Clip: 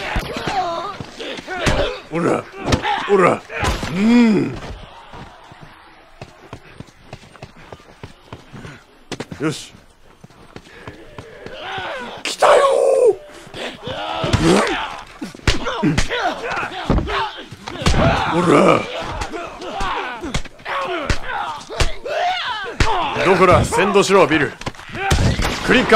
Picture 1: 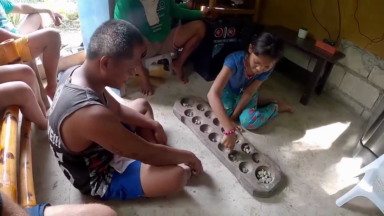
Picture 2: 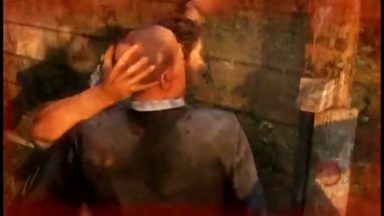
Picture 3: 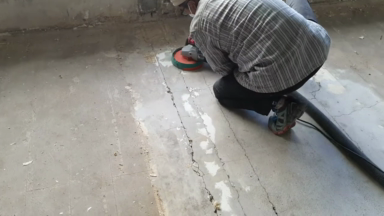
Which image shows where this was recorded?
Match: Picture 2